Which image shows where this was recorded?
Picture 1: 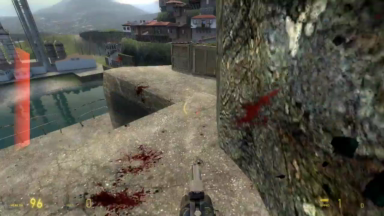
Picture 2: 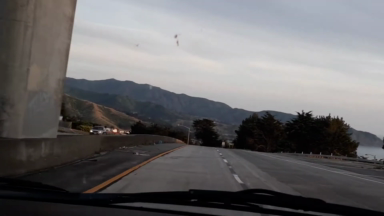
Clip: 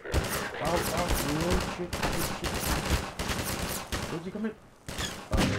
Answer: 1